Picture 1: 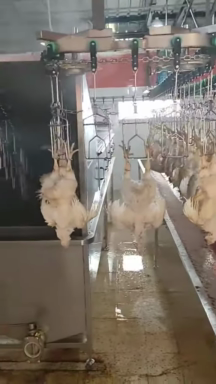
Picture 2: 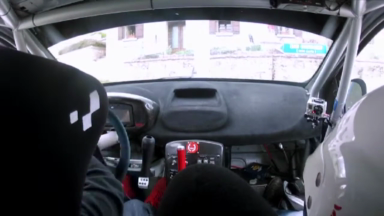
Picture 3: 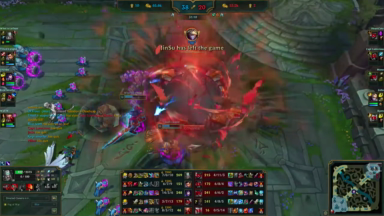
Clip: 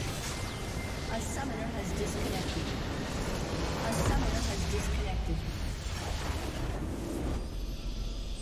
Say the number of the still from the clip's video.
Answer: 3